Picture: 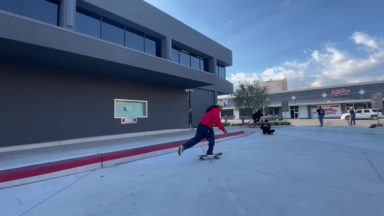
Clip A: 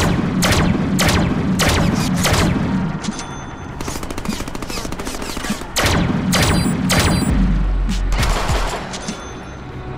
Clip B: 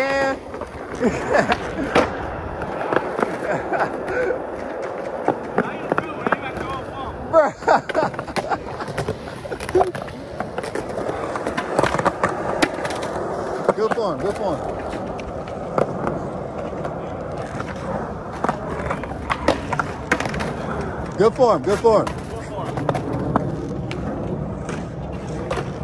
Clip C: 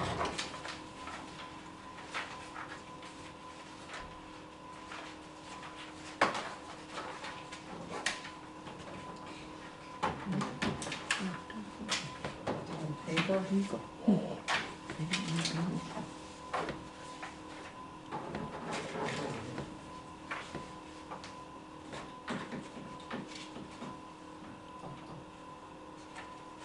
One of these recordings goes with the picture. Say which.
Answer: B